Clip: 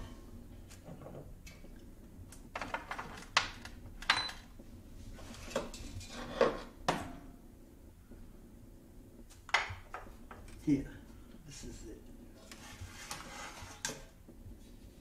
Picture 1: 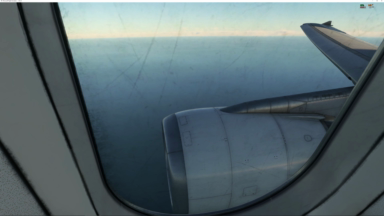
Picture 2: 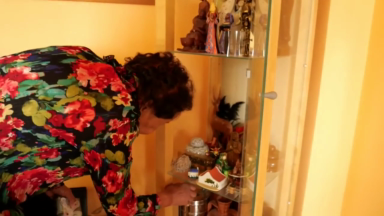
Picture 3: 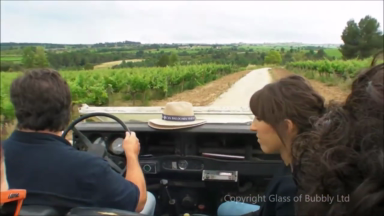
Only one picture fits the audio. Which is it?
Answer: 2